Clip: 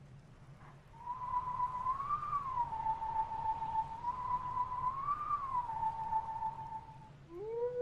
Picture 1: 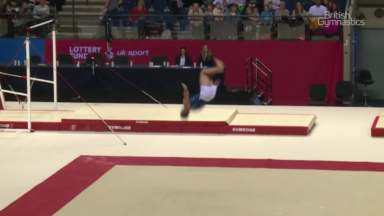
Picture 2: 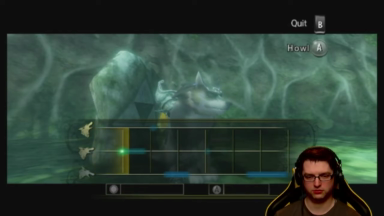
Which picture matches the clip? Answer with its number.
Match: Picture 2